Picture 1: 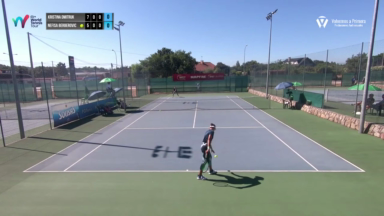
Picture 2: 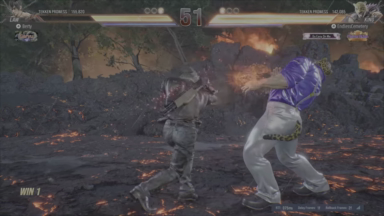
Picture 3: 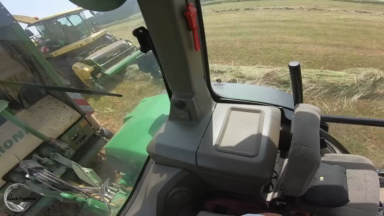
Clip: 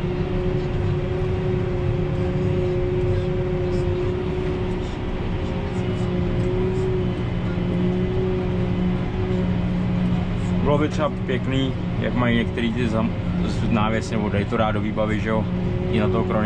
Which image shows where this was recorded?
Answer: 3